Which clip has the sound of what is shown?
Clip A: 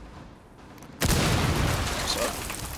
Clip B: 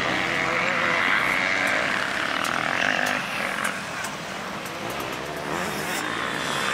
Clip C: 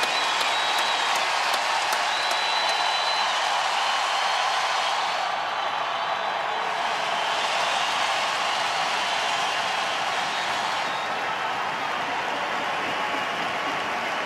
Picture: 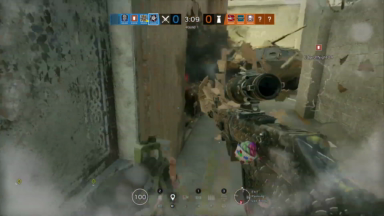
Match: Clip A